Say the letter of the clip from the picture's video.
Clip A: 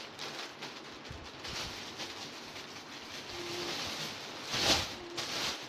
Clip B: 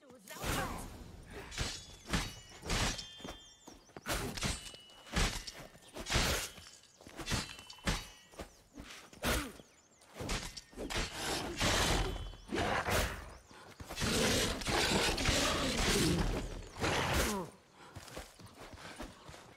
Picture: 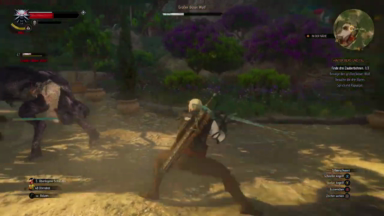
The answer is B